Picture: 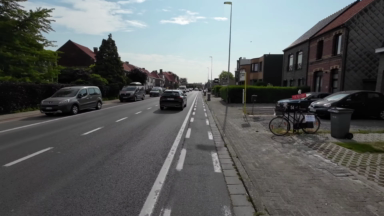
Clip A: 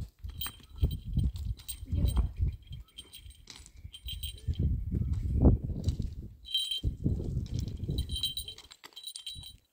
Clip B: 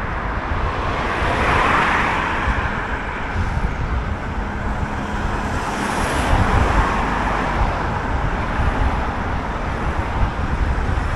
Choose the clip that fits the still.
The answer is B